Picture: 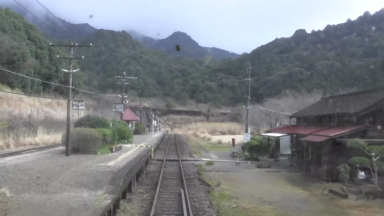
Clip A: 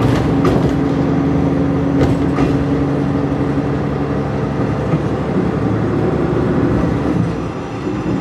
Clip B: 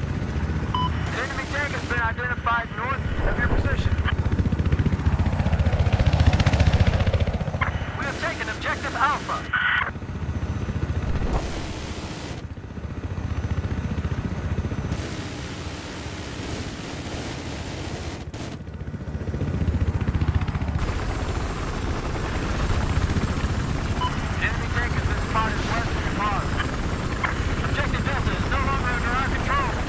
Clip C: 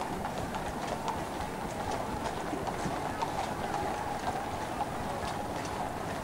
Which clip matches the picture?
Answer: A